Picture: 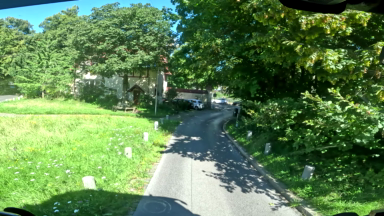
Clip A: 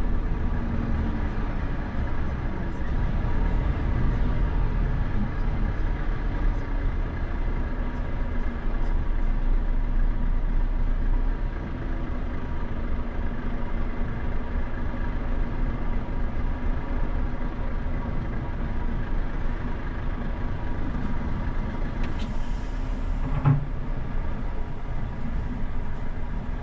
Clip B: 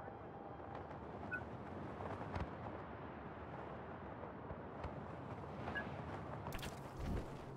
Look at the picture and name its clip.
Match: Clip A